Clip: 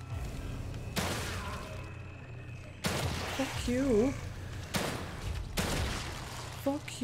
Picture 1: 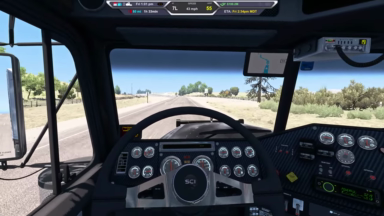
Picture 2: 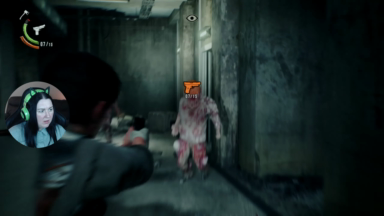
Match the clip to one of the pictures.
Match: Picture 2